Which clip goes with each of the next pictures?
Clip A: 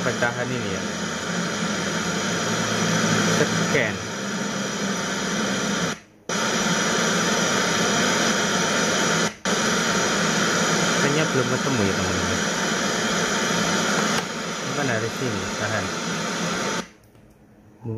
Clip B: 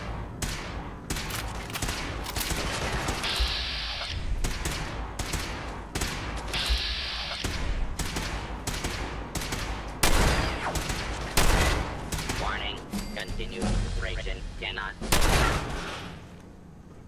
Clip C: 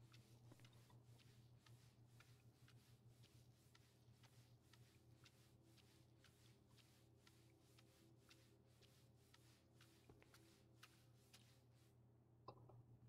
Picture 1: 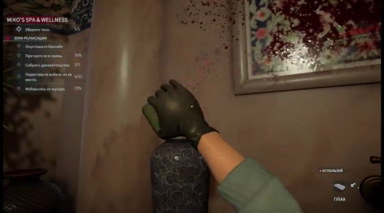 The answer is C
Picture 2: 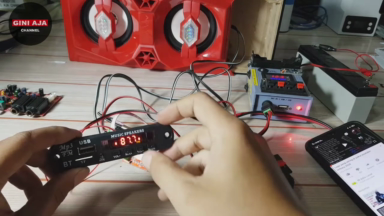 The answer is A